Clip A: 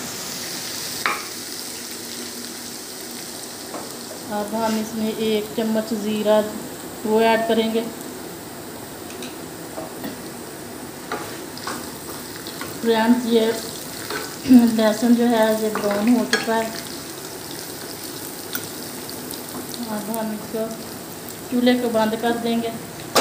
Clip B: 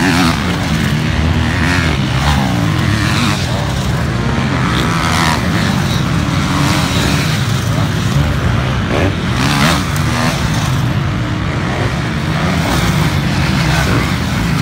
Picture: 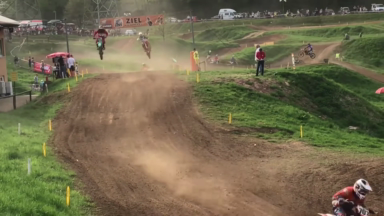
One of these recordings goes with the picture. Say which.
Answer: B